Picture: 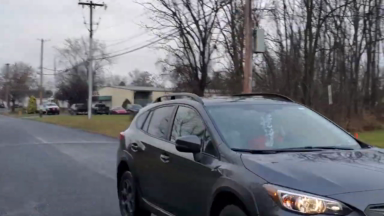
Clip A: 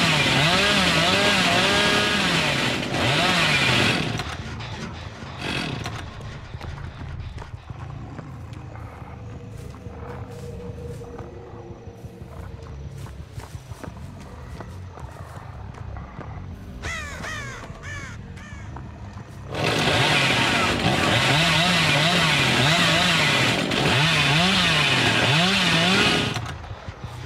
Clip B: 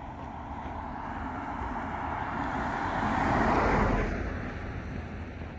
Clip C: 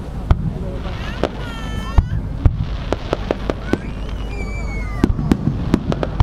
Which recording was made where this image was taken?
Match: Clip B